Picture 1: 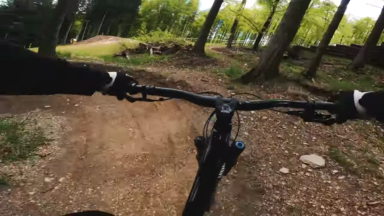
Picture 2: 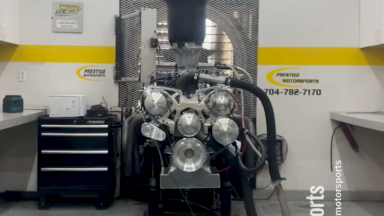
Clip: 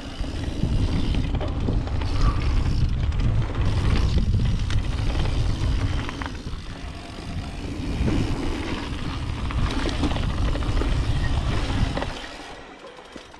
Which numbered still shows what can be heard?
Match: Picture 1